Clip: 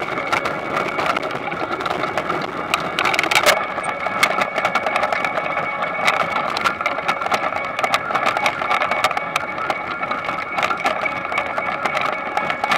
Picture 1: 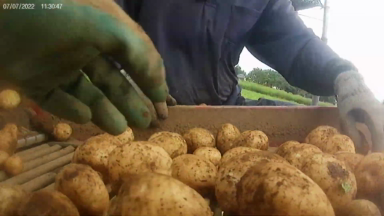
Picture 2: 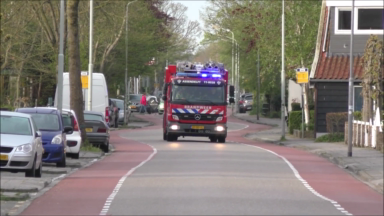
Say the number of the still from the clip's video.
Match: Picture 1